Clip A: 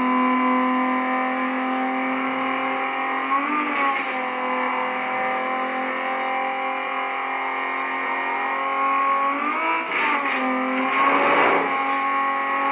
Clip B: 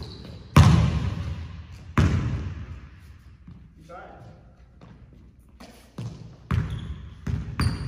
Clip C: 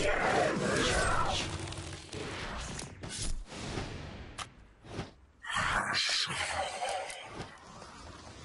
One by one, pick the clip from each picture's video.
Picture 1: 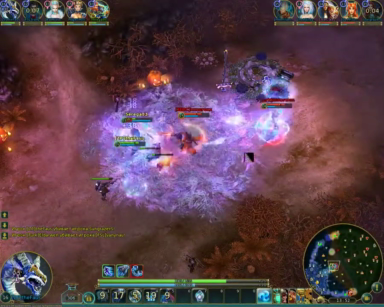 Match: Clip C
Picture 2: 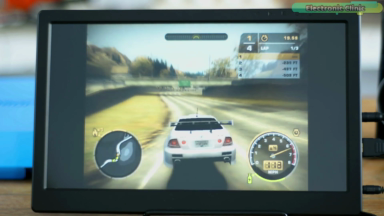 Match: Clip A